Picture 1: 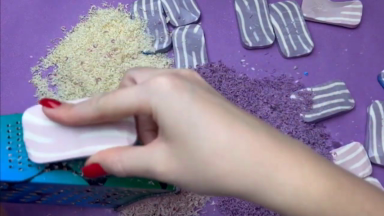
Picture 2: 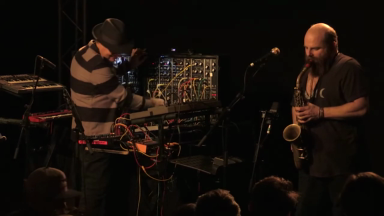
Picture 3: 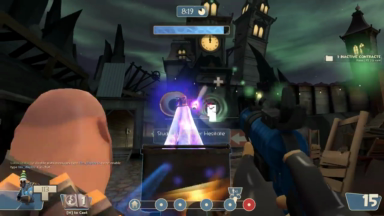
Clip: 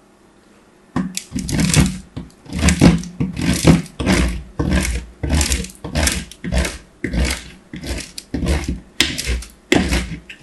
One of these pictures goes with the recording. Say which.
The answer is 1